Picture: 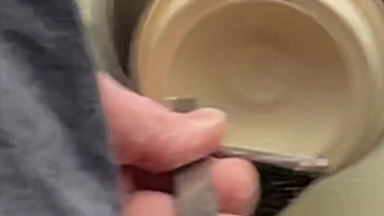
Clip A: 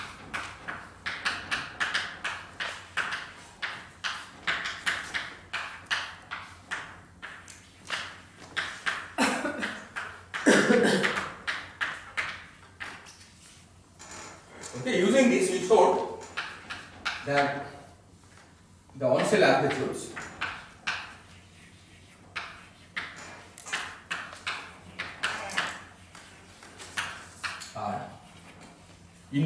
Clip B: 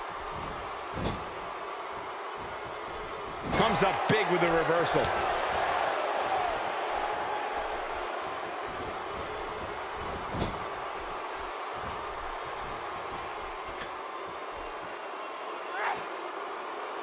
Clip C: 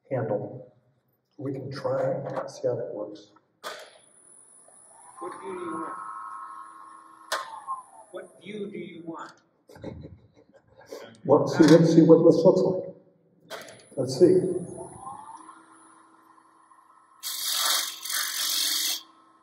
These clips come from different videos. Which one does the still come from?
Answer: C